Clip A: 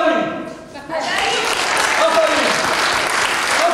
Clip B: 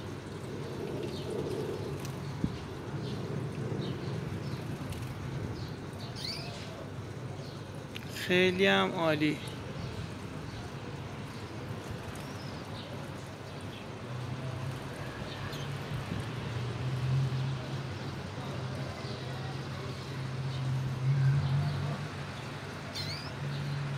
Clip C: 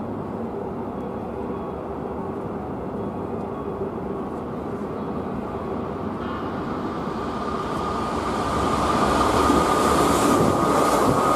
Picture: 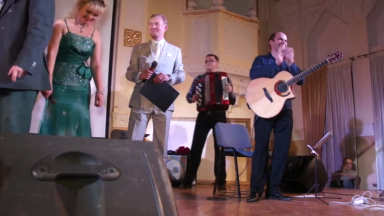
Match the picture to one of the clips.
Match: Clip A